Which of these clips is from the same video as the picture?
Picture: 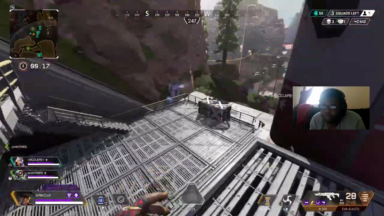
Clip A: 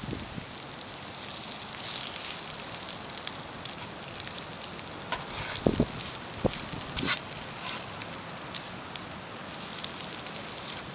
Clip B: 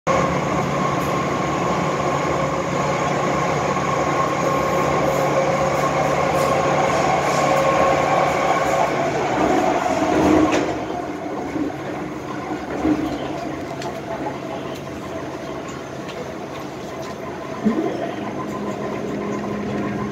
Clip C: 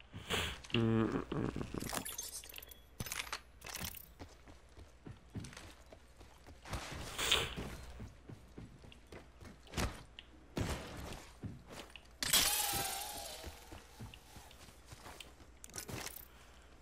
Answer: C